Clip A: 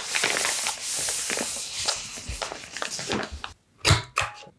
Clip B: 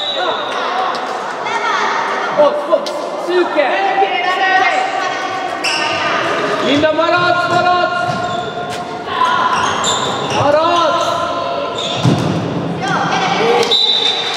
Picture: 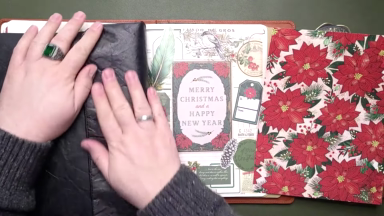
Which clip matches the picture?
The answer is A